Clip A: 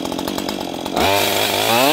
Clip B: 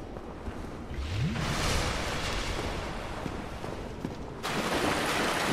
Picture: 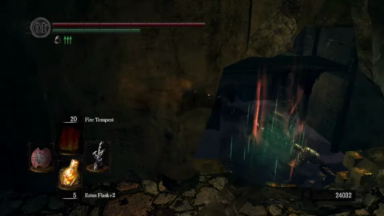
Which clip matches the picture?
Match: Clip B